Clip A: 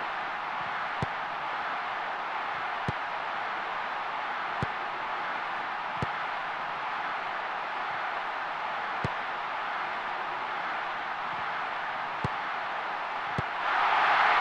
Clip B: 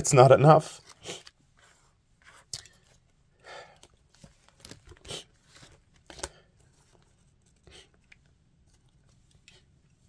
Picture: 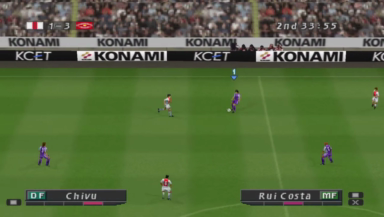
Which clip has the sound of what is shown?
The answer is A